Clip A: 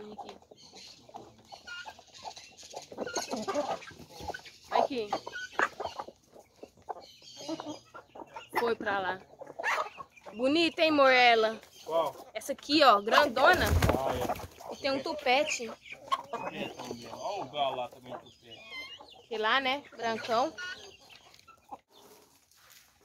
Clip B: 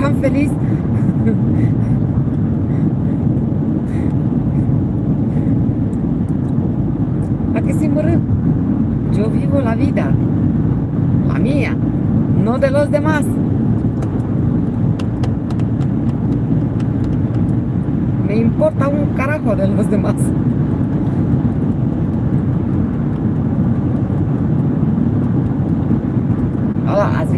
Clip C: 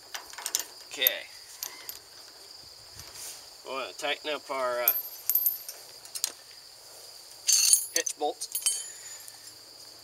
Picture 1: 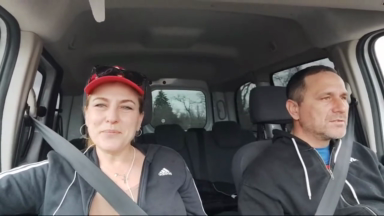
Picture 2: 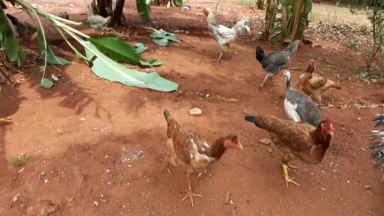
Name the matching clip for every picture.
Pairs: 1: B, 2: A